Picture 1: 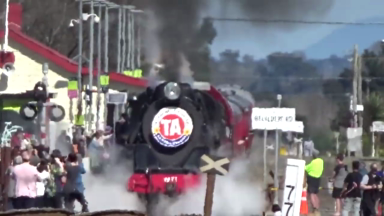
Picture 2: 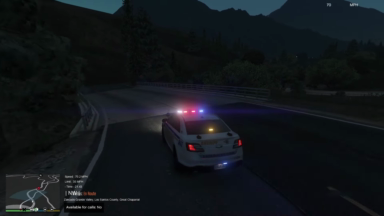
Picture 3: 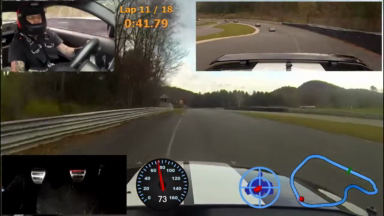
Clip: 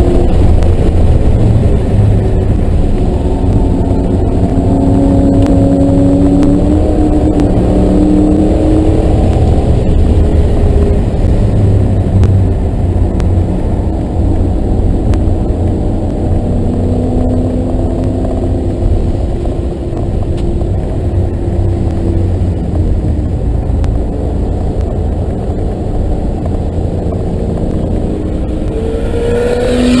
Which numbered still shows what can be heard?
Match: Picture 3